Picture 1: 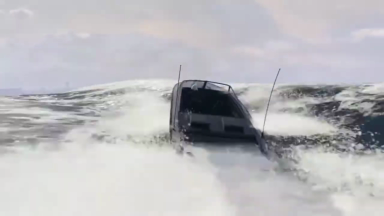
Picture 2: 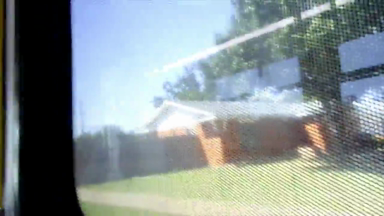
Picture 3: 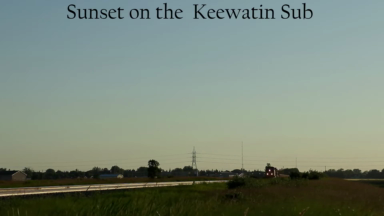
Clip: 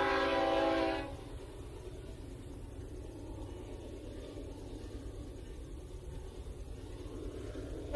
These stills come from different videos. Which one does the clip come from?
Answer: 3